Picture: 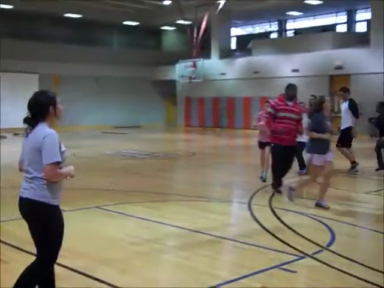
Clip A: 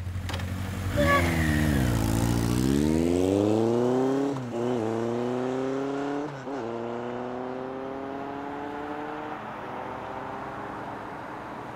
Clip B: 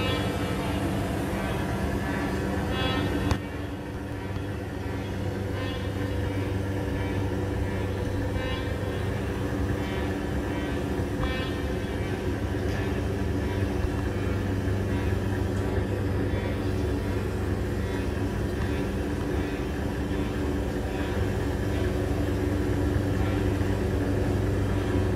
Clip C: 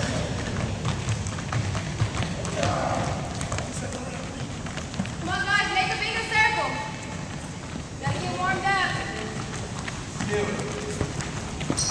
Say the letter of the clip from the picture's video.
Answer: C